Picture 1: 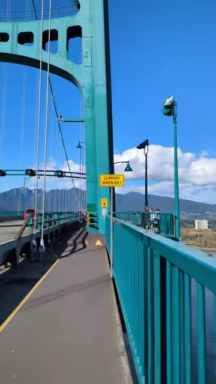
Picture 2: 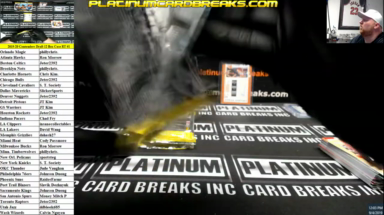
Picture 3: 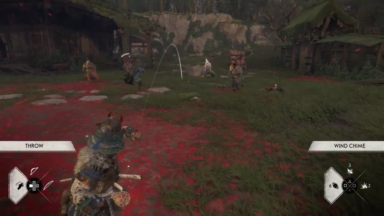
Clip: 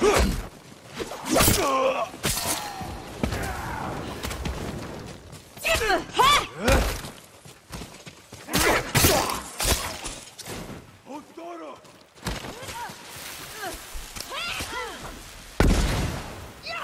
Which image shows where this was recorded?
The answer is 3